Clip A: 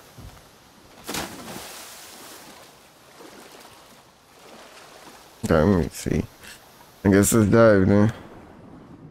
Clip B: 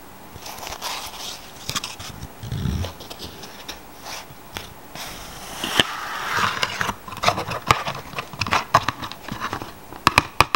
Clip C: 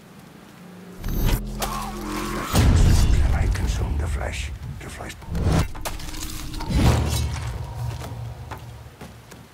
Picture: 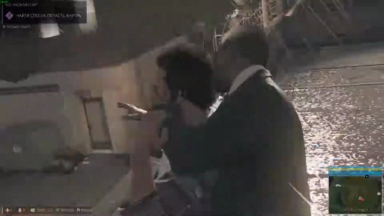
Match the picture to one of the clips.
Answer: C